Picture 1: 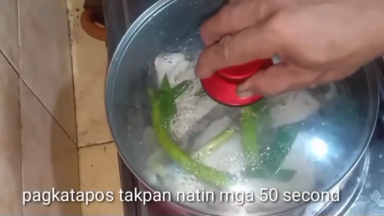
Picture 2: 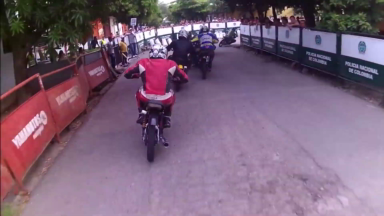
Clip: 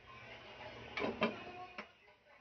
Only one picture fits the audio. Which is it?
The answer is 1